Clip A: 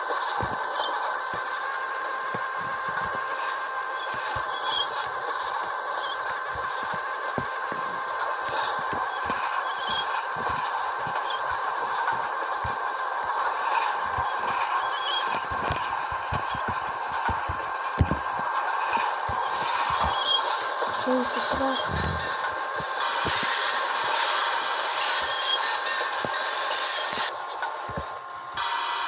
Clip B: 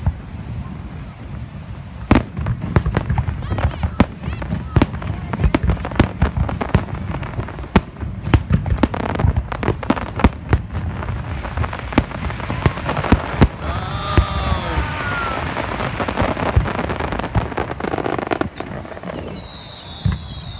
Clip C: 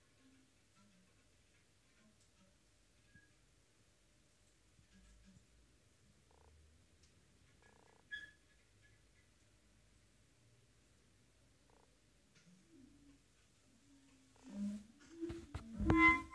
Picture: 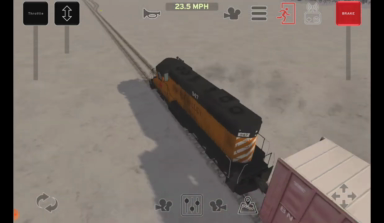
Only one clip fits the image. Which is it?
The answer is A